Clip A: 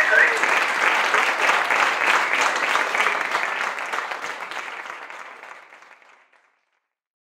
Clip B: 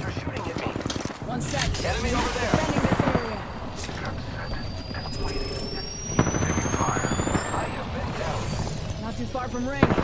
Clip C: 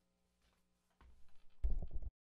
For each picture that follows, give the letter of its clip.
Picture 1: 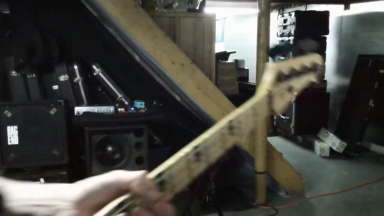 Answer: C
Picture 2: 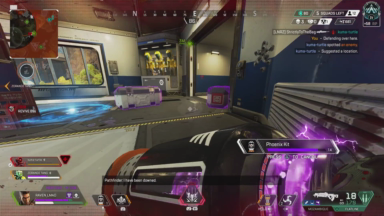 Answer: B